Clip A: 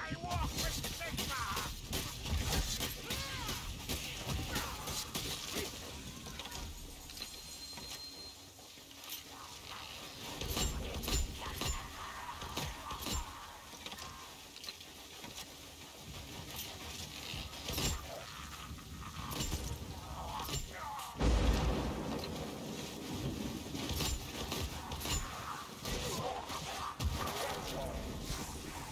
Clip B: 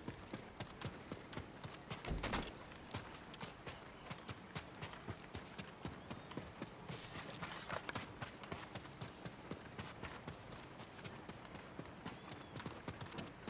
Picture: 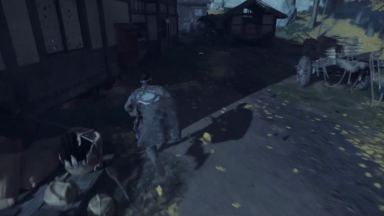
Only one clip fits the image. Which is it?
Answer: B